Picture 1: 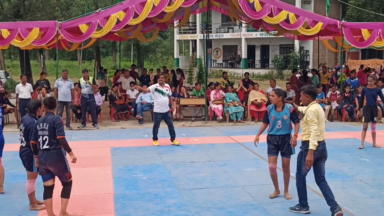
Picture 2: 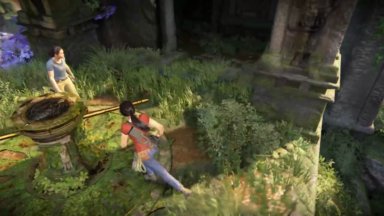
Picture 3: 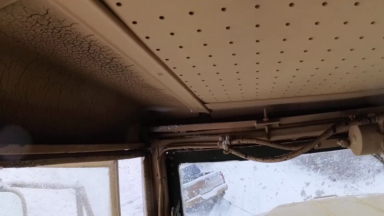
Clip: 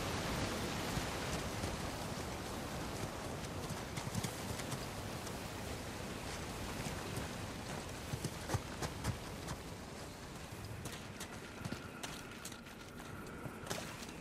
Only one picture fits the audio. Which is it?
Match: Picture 2